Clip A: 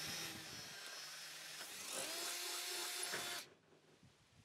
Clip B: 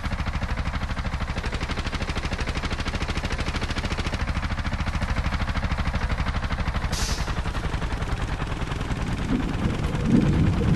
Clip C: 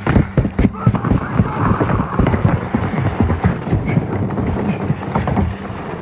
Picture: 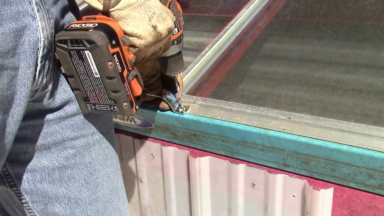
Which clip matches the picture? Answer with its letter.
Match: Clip A